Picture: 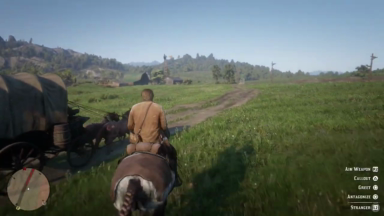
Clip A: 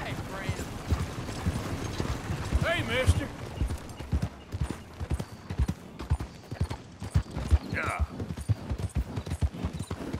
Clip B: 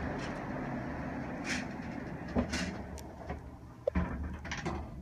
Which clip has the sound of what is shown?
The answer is A